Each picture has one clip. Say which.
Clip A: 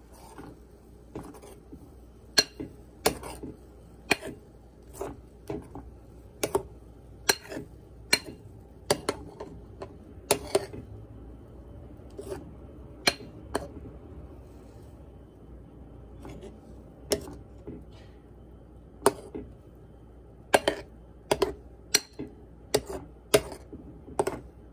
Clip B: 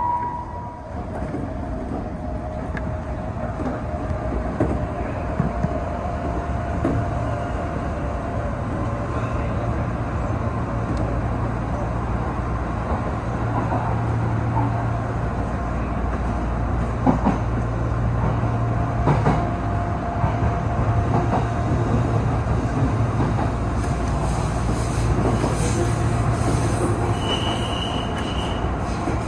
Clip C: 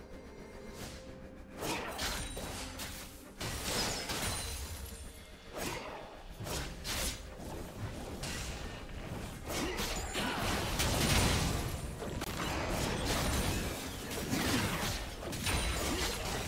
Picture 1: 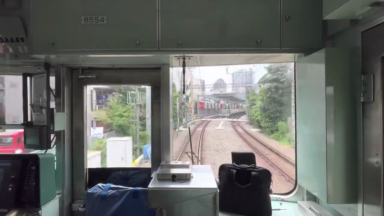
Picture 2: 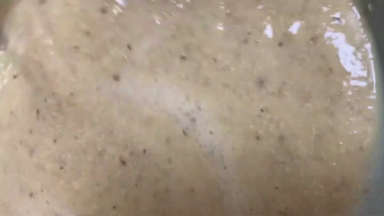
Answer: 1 B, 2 A